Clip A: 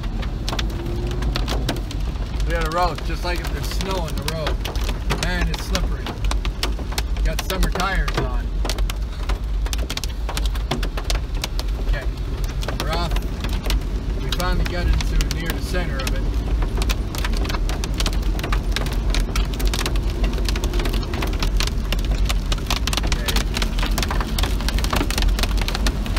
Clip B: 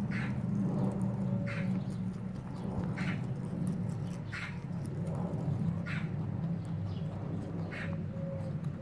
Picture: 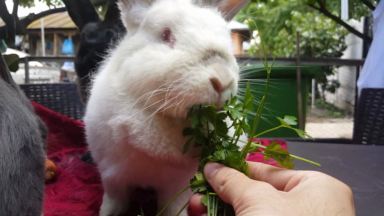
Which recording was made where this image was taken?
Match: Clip B